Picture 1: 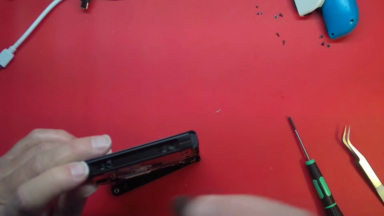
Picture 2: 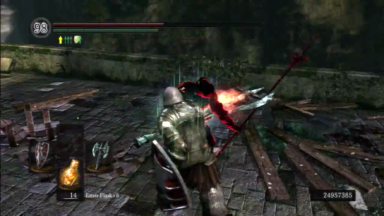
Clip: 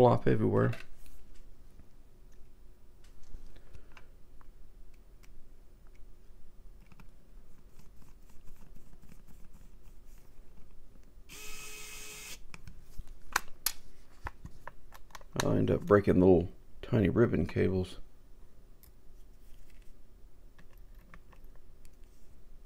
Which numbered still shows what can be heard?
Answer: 1